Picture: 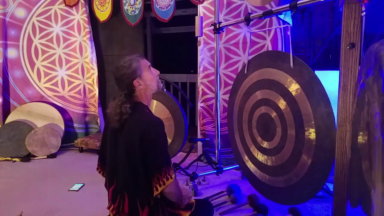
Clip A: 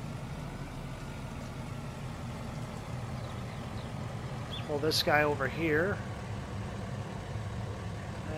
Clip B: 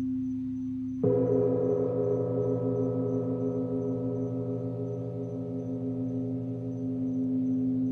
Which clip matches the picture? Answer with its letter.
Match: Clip B